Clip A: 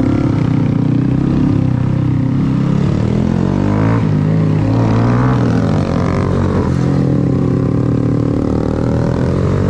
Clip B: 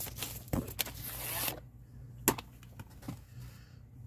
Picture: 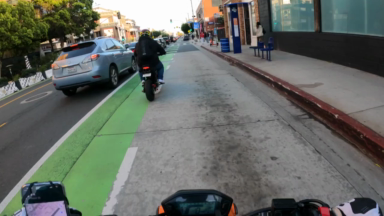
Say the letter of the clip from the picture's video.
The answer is A